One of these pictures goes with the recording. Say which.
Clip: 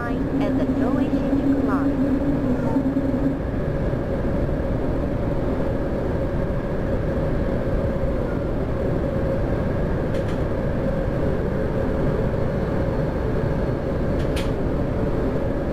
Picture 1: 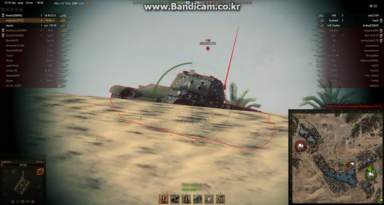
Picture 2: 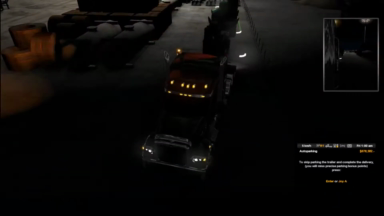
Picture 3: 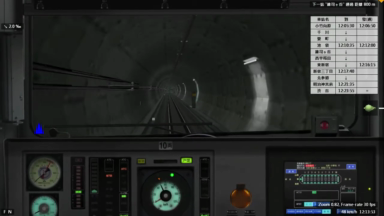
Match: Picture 3